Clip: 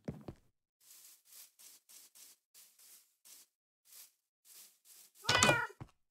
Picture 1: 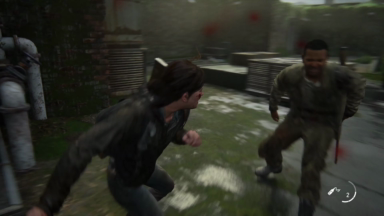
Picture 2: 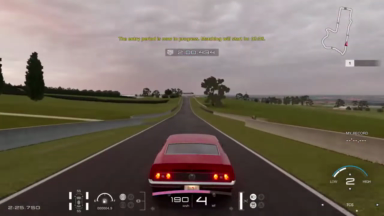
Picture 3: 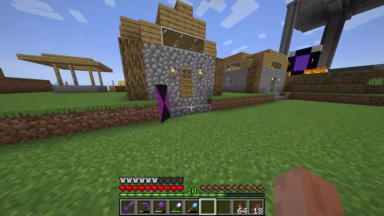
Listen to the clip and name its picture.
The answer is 3